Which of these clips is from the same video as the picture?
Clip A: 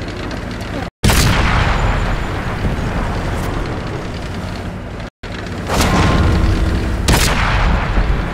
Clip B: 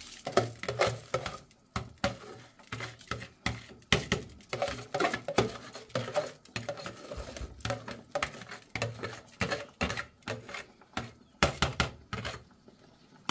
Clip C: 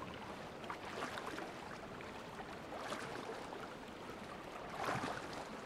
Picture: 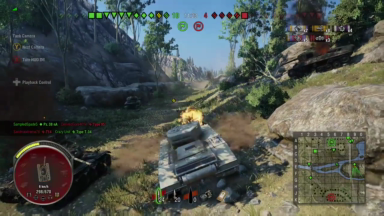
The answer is A